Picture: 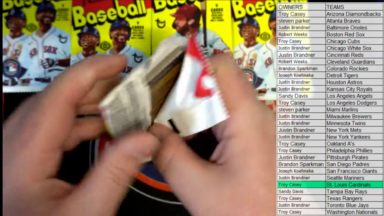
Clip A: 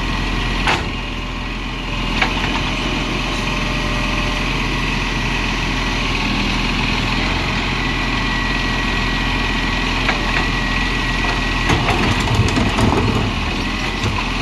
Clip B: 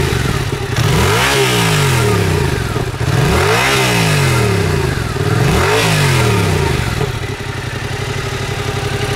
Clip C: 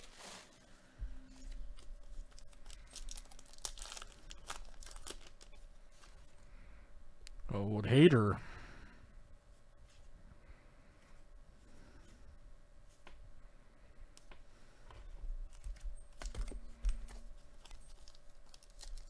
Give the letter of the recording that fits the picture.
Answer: C